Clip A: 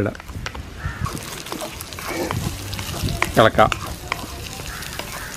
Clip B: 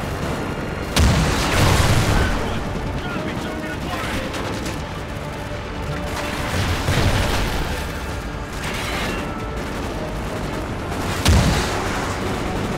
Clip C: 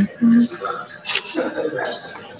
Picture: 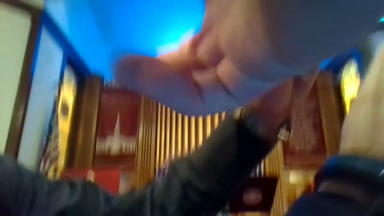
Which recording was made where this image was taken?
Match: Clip C